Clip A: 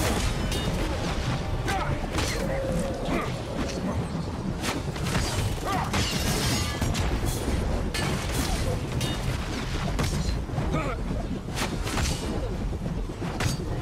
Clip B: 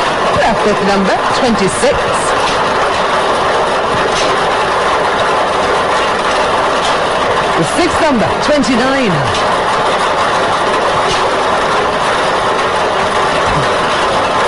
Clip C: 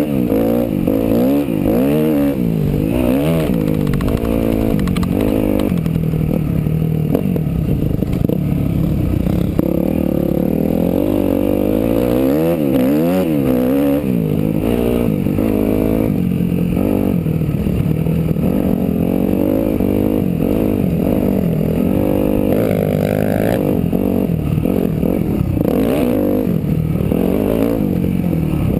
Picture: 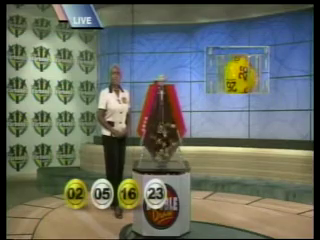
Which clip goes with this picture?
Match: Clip B